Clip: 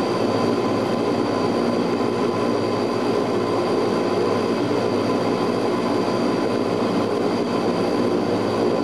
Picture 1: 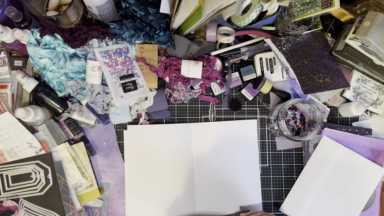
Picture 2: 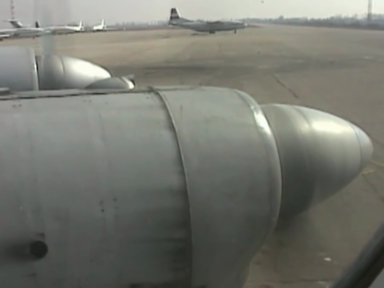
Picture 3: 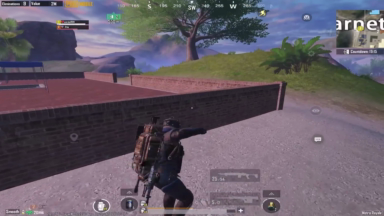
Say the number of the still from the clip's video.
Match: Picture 2